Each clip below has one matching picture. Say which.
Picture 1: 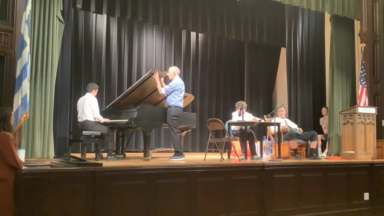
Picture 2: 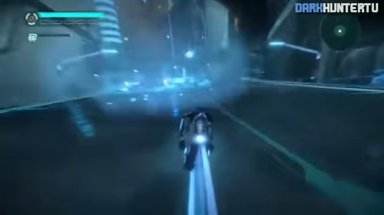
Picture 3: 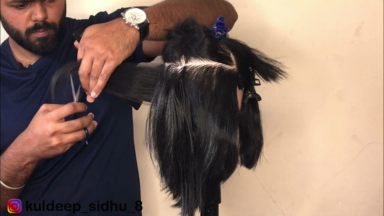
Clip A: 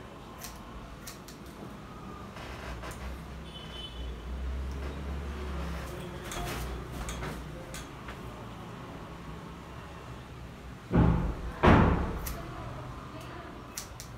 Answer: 3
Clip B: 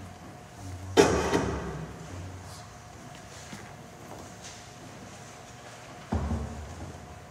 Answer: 1